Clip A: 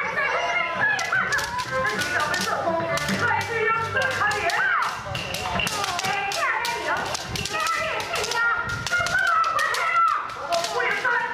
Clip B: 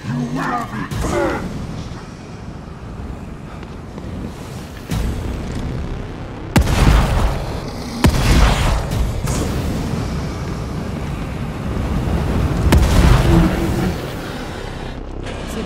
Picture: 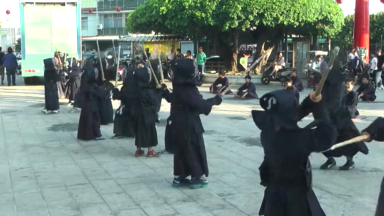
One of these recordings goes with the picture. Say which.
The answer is A